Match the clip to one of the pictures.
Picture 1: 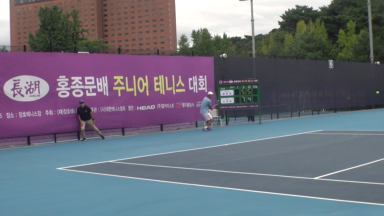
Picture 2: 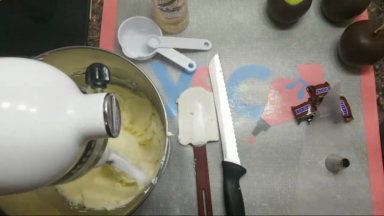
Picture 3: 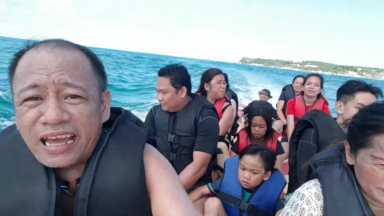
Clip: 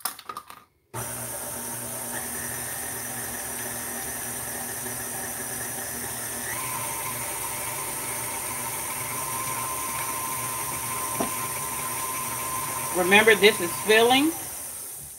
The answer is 2